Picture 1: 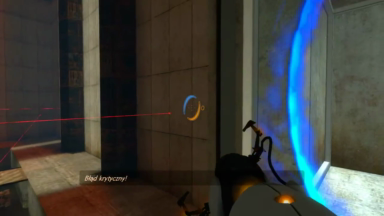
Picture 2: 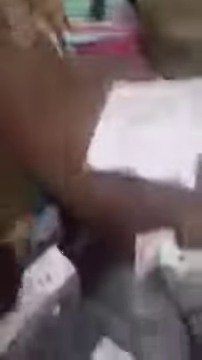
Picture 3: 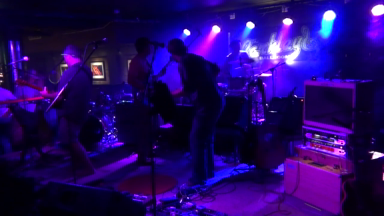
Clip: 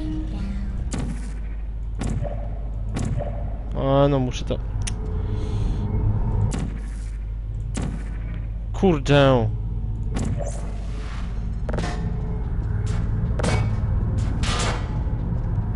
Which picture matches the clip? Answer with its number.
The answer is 1